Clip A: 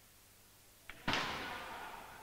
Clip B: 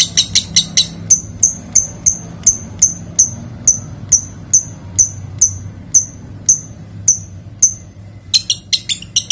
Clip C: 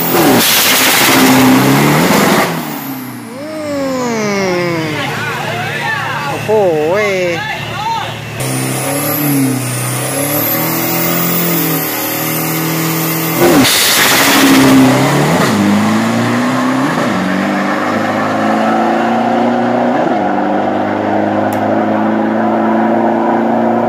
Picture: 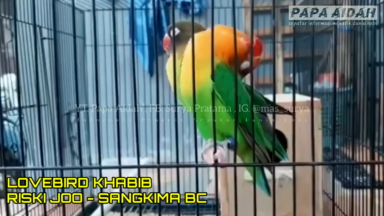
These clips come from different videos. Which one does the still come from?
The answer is B